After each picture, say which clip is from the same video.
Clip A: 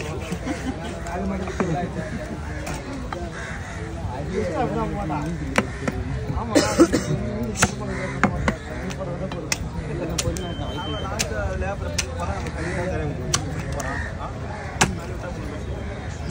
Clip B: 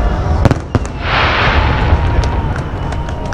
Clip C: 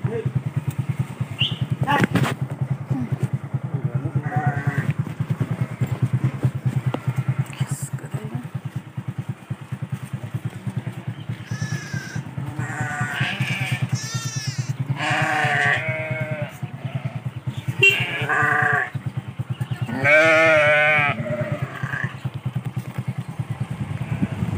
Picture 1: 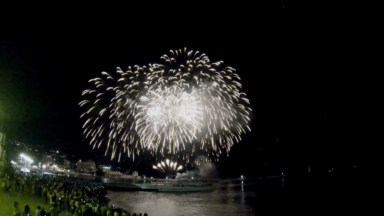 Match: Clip B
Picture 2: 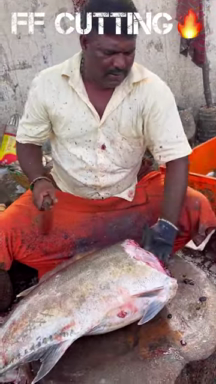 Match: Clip A